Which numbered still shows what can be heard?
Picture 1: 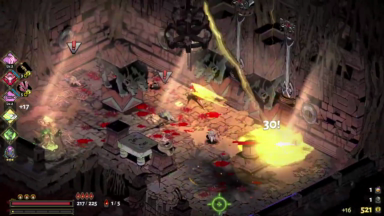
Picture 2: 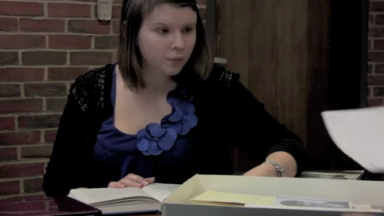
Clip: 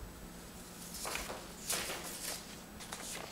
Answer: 2